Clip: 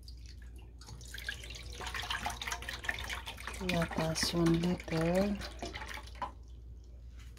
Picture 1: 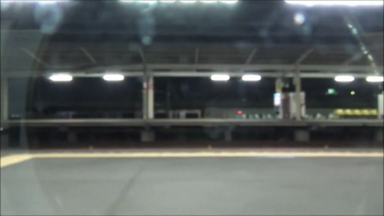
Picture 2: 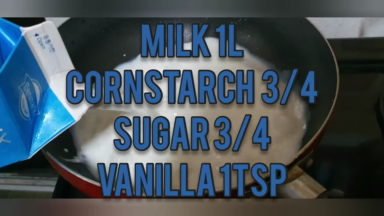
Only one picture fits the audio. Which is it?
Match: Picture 2